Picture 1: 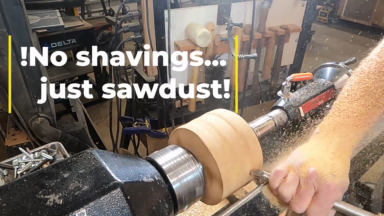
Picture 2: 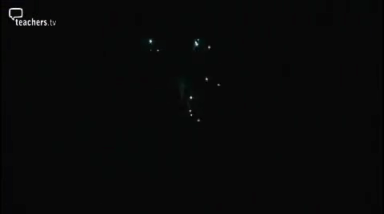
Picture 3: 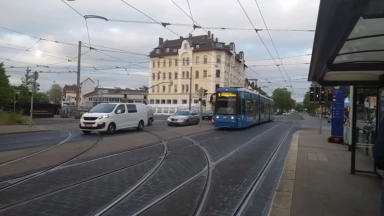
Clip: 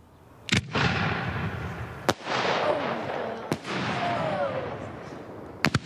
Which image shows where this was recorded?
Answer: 2